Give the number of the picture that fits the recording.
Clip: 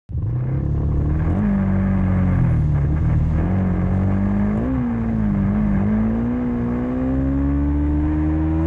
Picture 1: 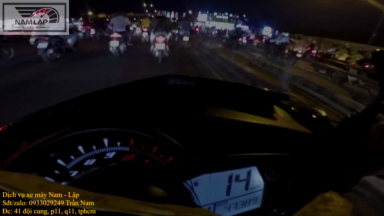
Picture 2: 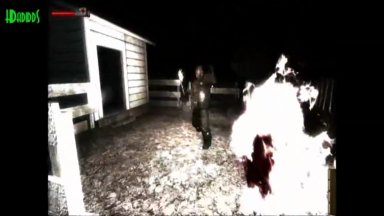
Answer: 1